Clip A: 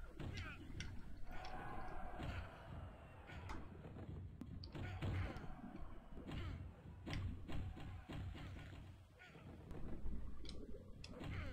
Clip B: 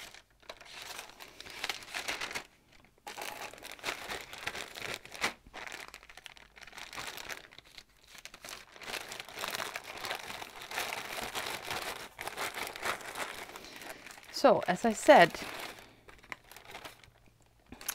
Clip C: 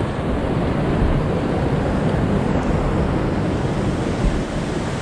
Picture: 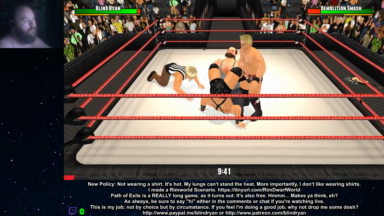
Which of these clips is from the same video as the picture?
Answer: A